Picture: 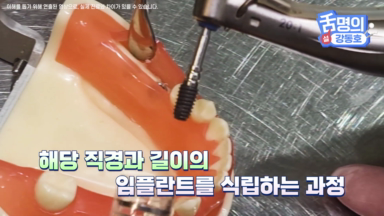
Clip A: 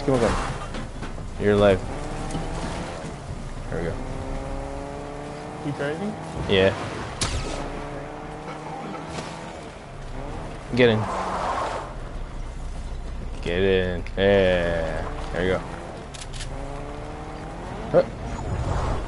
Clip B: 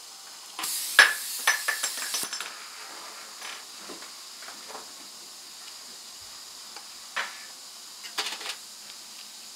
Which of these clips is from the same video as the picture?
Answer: B